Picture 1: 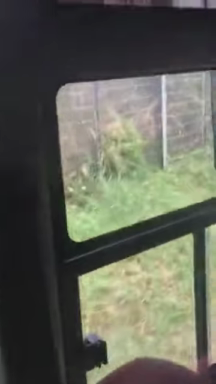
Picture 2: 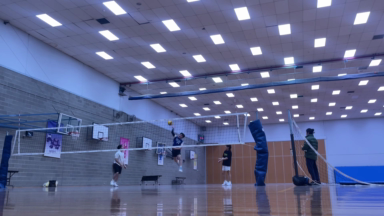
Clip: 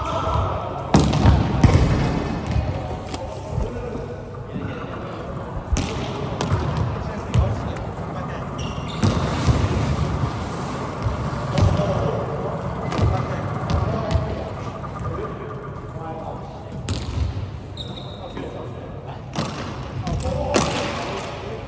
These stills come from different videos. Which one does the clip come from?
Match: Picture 2